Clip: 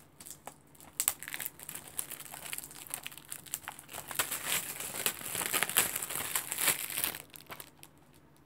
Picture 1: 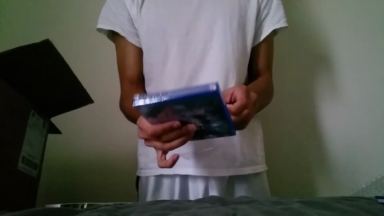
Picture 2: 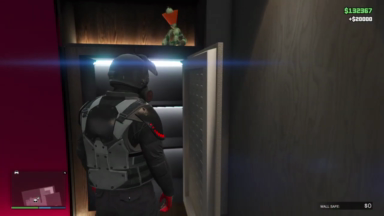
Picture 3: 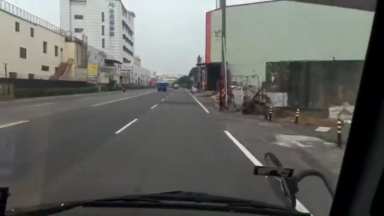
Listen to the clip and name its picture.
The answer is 1